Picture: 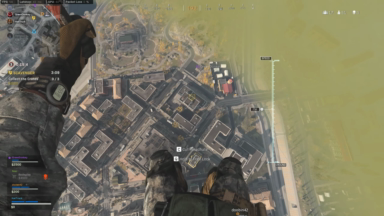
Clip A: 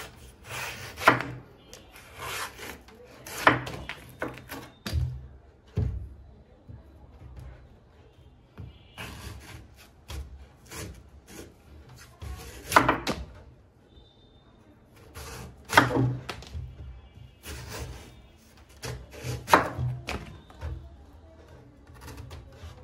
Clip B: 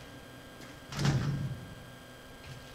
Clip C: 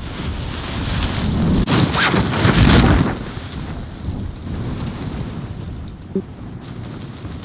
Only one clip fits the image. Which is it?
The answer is C